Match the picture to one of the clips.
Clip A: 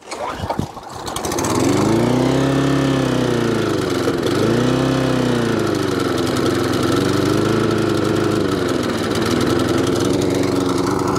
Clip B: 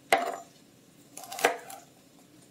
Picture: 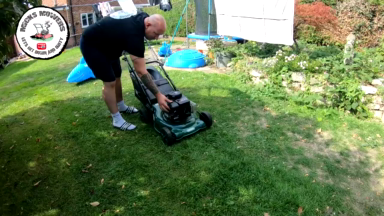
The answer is A